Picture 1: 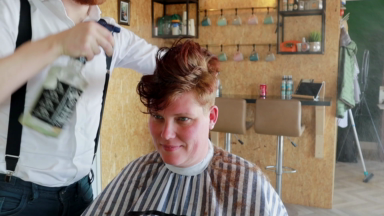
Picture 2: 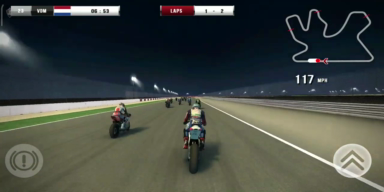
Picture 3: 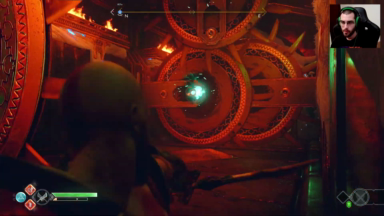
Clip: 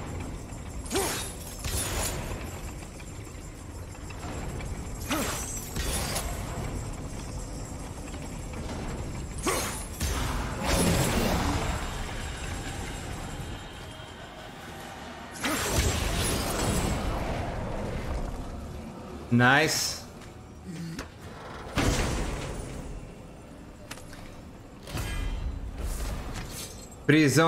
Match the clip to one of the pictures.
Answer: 3